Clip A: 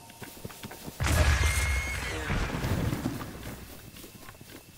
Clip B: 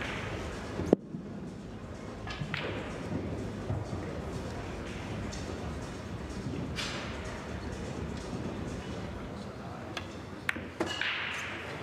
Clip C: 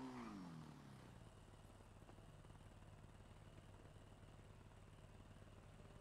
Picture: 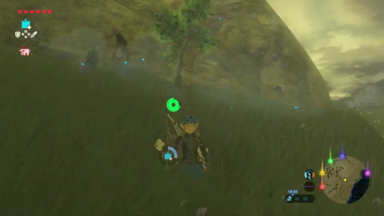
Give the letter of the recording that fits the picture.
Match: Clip A